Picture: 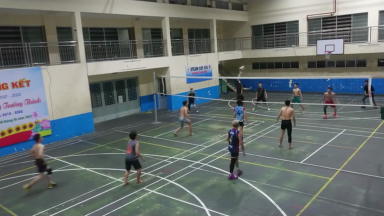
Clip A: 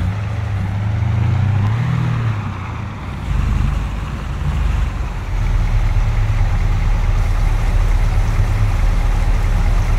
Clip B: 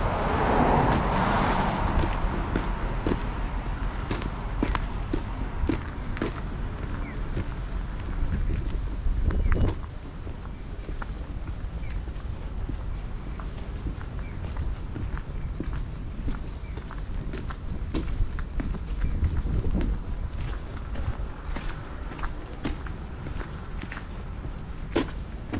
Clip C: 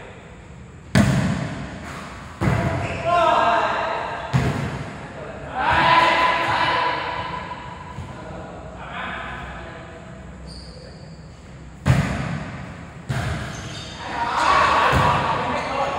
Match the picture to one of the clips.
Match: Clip C